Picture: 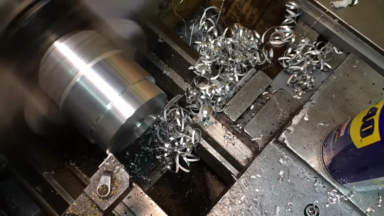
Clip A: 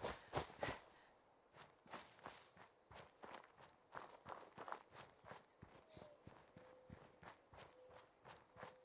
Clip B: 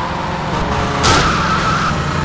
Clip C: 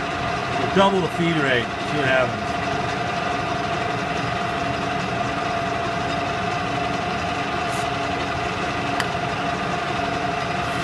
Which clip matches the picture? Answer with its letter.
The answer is C